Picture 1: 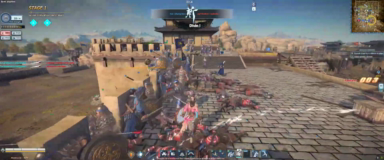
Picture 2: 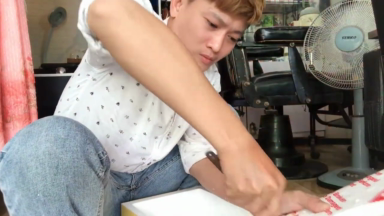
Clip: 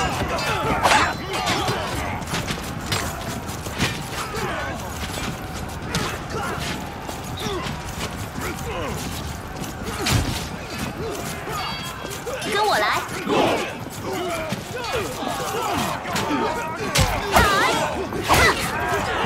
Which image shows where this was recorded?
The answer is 1